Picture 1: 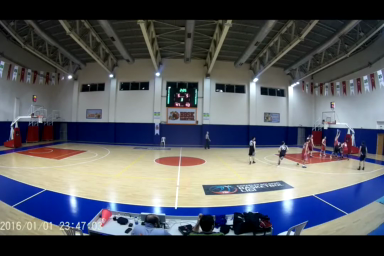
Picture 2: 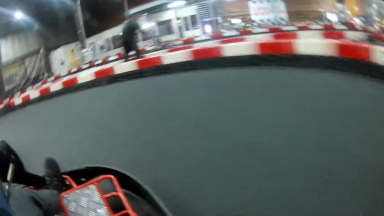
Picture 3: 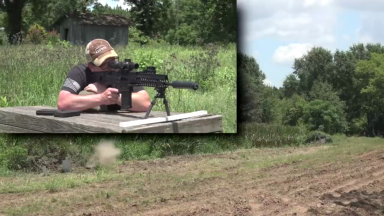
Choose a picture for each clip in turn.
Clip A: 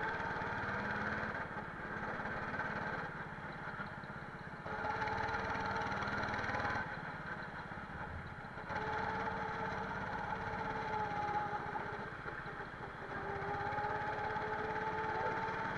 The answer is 2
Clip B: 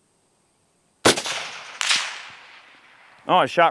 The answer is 3